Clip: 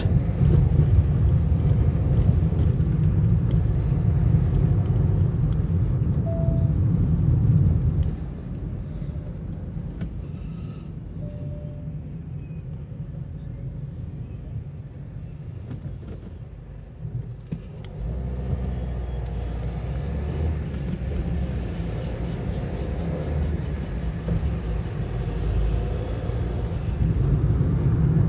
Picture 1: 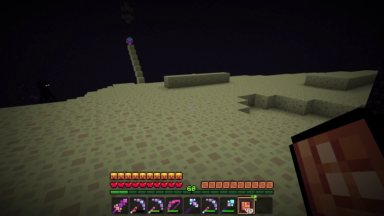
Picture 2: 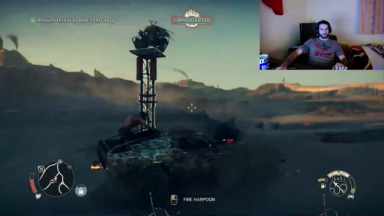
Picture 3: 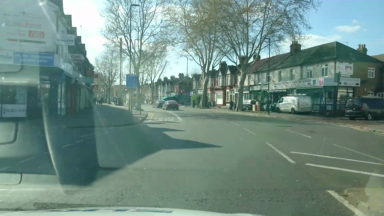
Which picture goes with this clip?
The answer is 3